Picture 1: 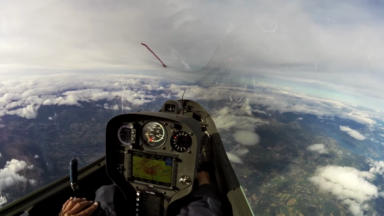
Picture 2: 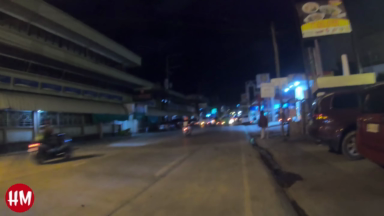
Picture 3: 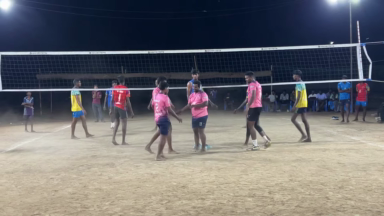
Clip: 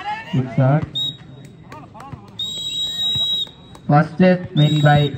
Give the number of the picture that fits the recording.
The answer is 3